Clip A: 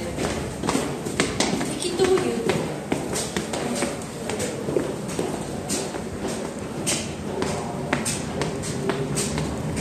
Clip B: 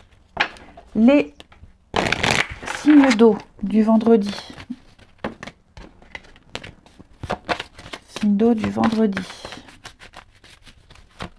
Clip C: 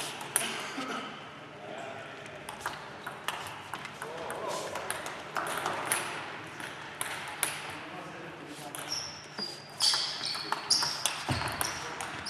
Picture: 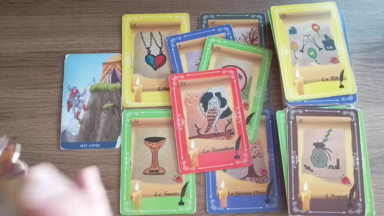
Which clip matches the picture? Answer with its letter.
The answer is B